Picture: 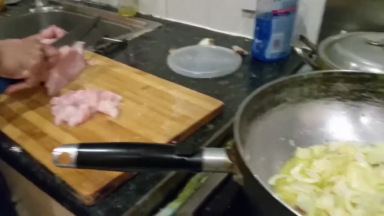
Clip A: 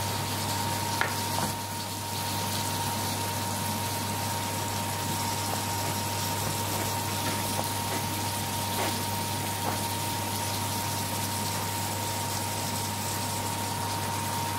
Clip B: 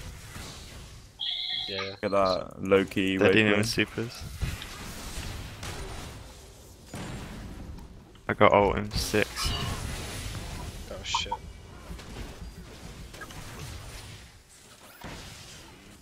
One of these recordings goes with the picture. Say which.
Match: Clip A